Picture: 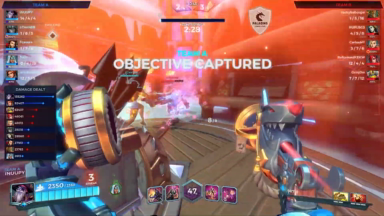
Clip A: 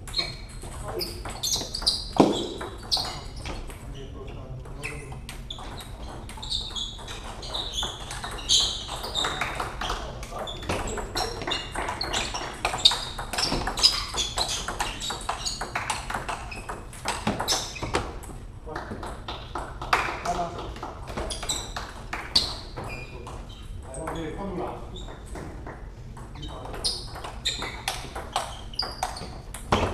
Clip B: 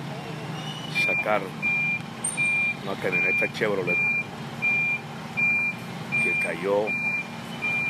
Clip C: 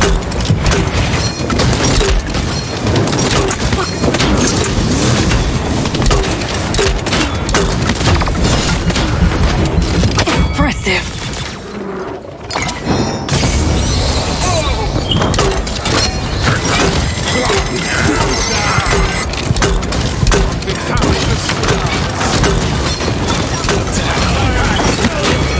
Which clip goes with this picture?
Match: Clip C